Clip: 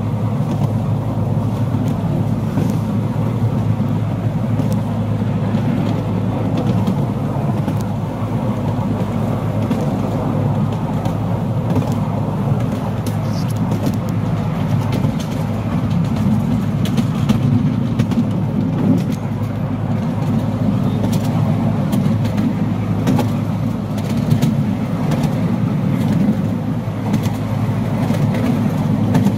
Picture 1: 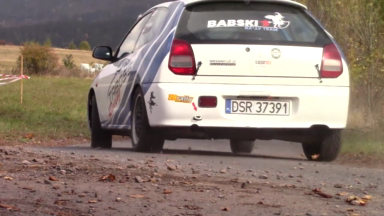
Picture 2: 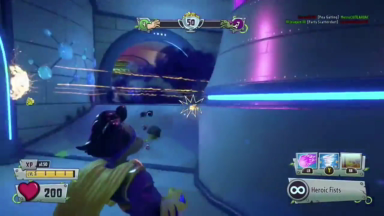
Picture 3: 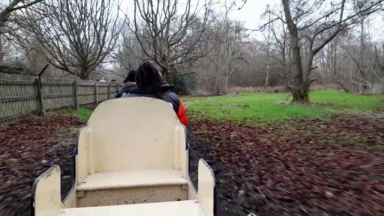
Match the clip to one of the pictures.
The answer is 3